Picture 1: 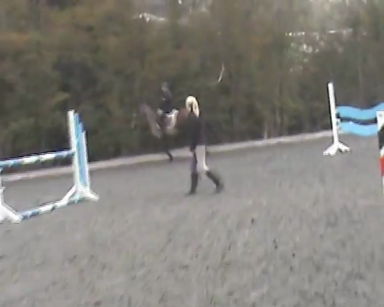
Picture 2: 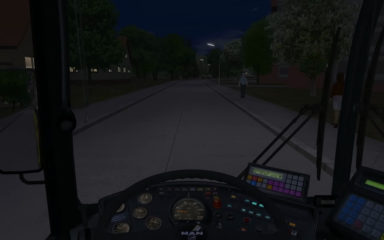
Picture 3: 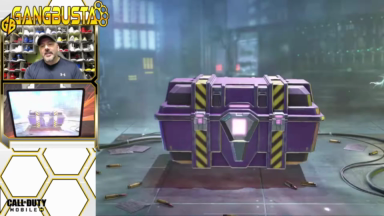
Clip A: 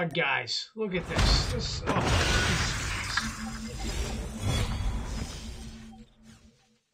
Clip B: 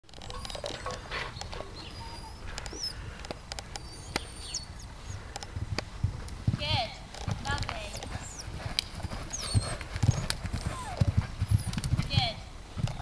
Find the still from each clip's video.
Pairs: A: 3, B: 1